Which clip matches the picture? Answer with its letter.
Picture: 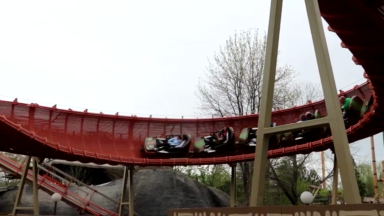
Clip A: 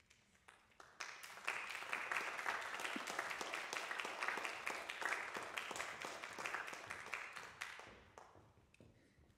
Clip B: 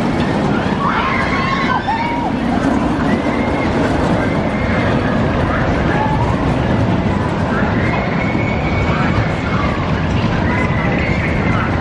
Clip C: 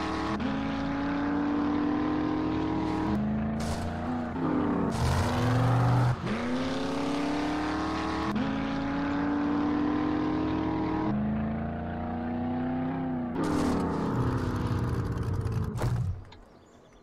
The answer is B